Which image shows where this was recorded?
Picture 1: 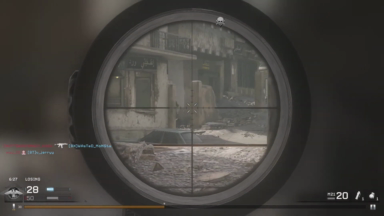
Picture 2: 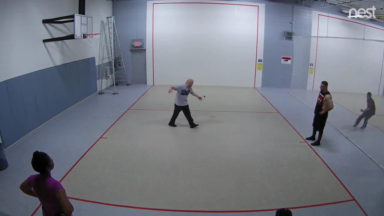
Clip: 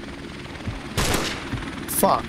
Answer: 1